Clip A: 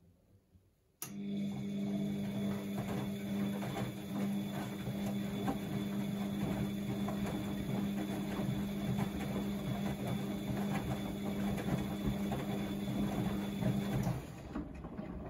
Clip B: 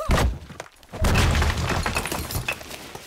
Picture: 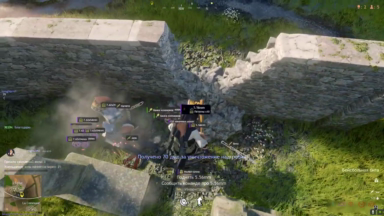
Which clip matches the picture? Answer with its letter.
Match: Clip B